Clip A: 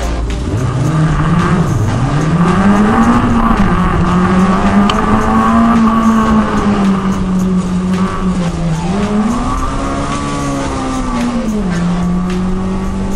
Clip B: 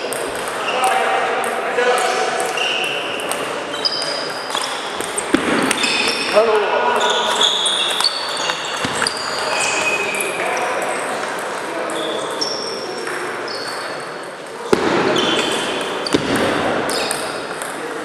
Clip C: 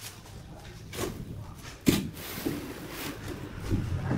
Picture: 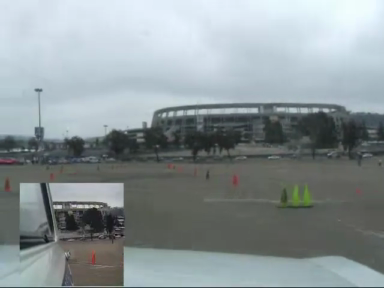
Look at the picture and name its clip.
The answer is A